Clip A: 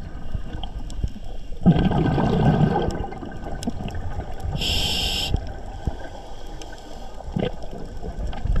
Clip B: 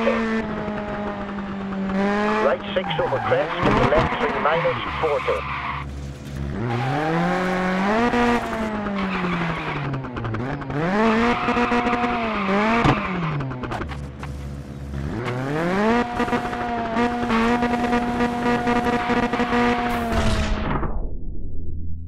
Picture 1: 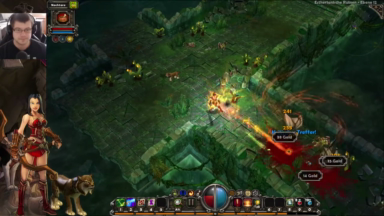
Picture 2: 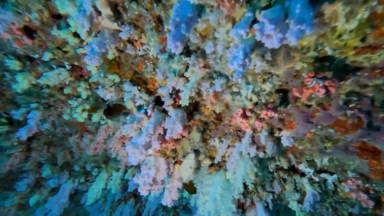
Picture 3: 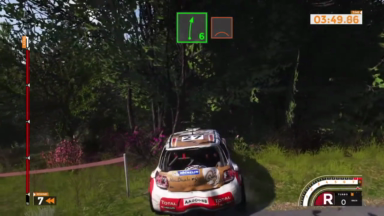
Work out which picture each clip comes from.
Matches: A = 2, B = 3